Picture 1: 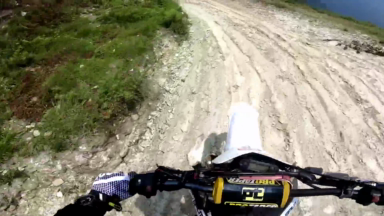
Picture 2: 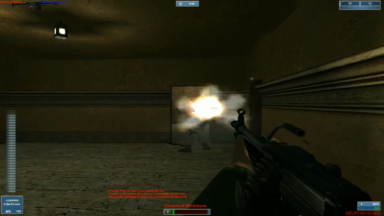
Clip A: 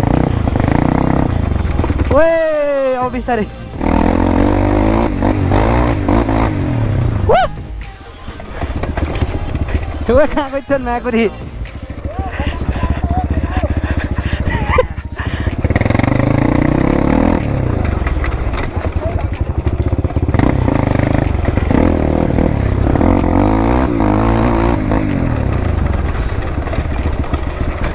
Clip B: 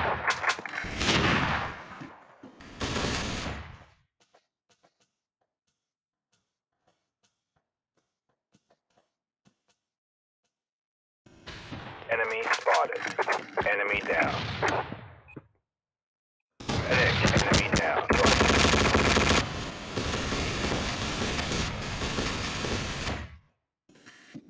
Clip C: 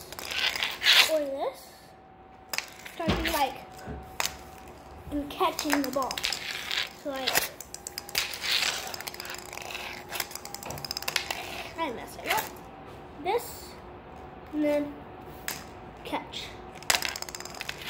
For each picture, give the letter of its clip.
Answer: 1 A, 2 B